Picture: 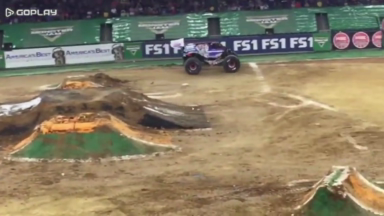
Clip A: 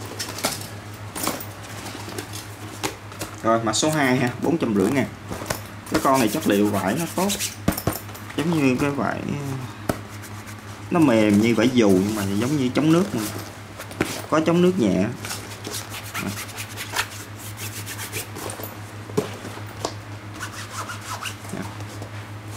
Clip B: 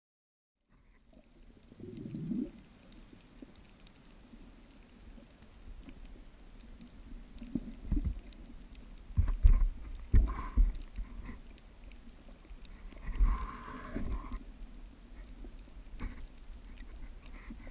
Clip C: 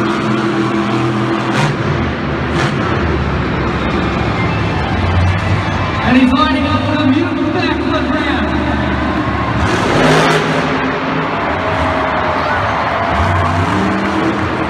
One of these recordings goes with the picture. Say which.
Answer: C